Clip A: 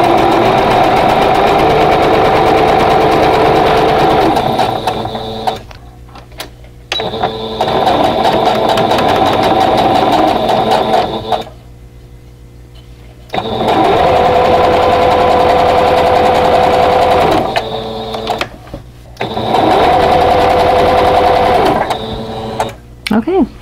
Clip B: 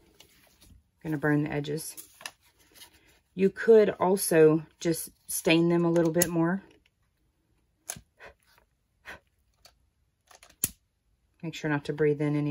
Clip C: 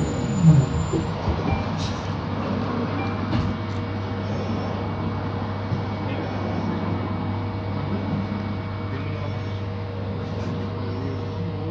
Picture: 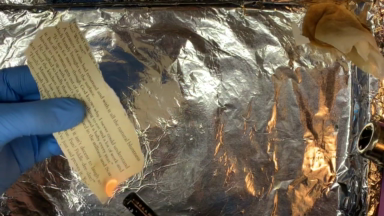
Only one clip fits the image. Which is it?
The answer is B